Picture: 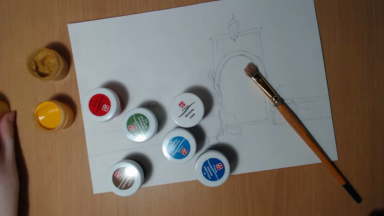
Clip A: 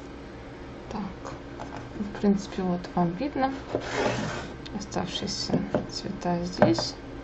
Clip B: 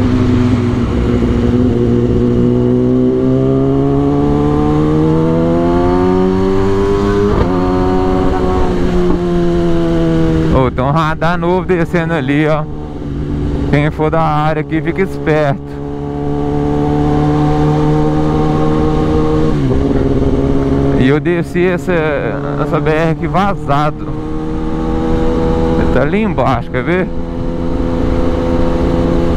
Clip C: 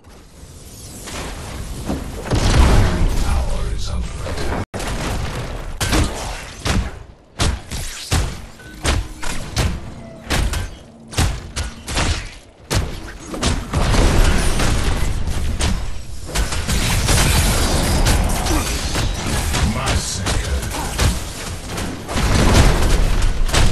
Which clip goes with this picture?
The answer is A